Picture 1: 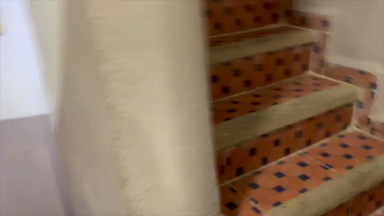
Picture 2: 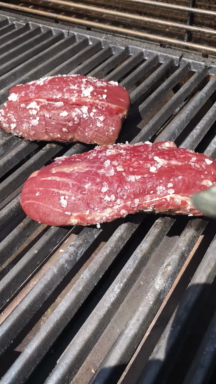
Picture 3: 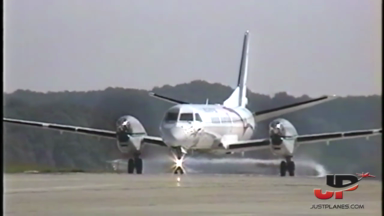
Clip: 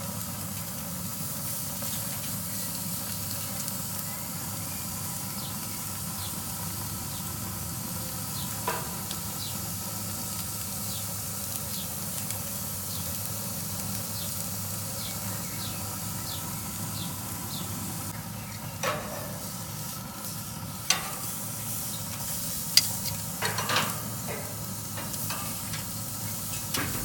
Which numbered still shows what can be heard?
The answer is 2